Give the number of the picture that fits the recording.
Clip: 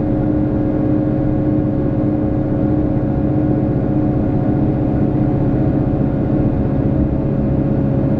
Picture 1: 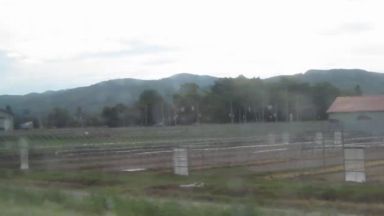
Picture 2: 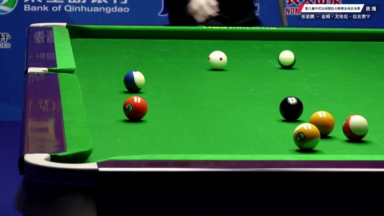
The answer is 1